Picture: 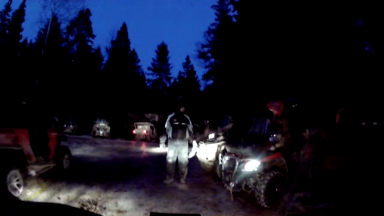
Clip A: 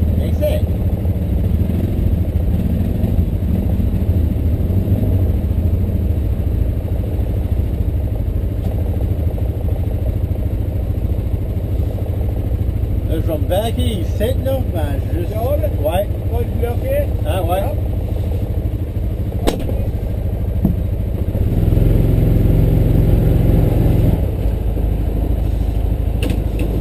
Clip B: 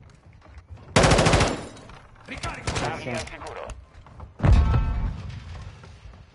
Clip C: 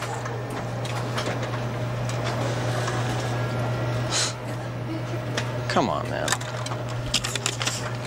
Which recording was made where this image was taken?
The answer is A